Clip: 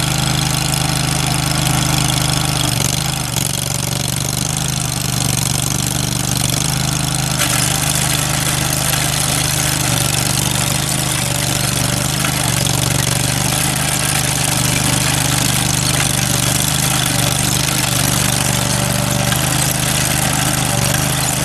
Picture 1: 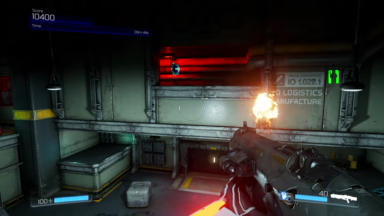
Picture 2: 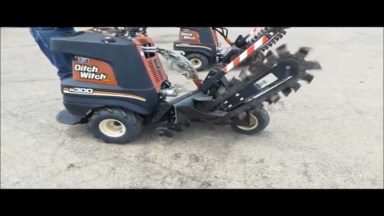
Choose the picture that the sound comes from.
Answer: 2